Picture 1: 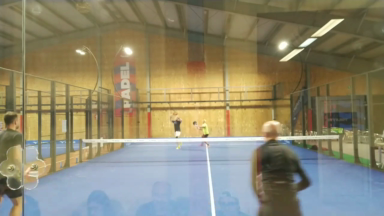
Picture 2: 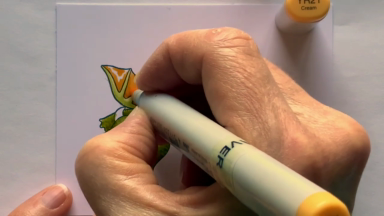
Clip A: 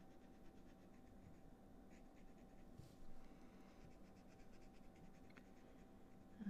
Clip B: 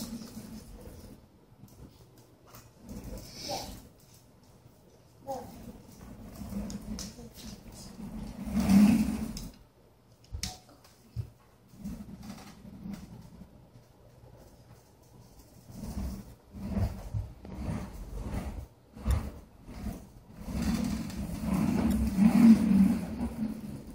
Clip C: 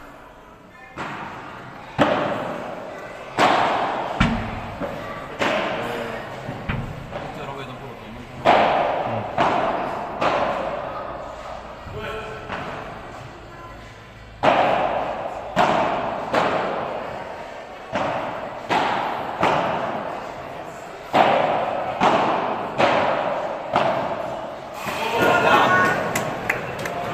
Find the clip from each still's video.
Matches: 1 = C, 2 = A